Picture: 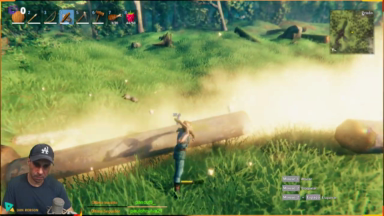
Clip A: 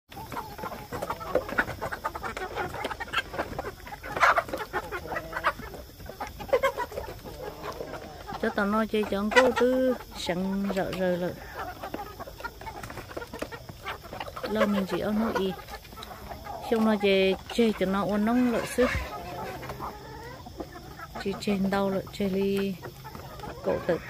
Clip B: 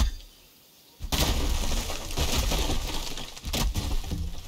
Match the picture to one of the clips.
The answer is B